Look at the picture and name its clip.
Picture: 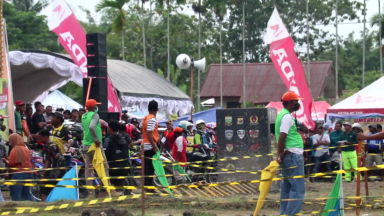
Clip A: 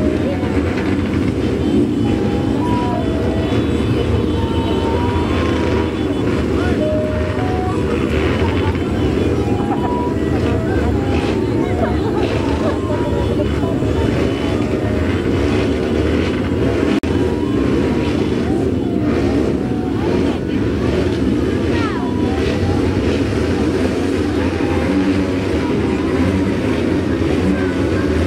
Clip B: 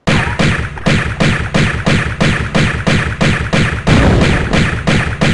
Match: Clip A